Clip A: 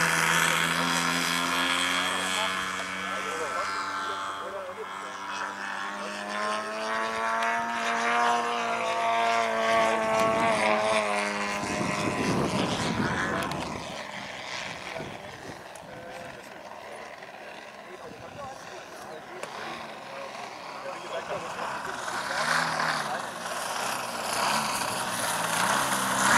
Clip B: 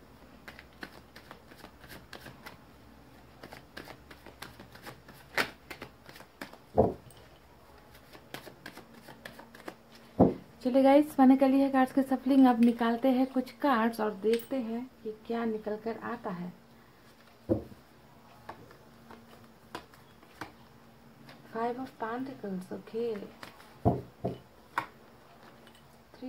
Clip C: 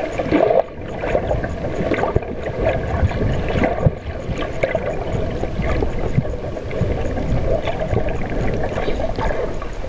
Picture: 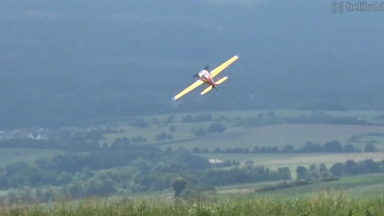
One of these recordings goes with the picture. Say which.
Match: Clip A